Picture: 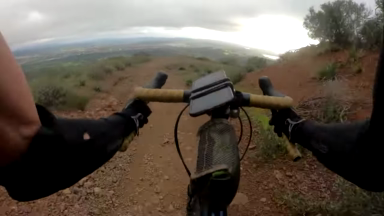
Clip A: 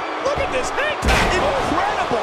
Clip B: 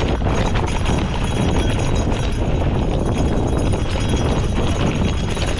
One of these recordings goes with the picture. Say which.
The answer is B